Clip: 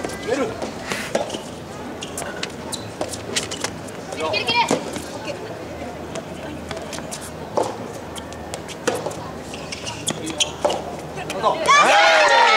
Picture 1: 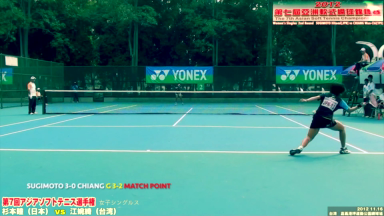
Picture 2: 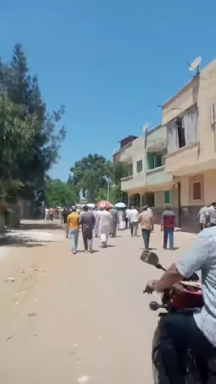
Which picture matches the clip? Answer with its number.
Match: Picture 1